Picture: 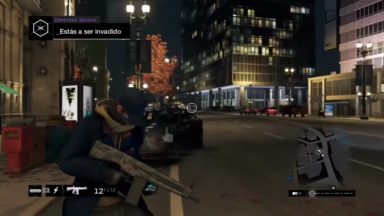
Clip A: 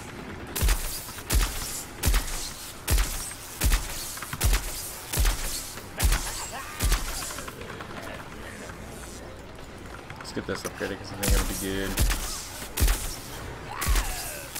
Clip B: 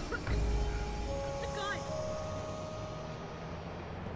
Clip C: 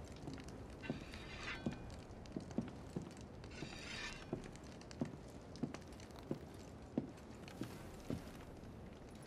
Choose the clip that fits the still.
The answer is B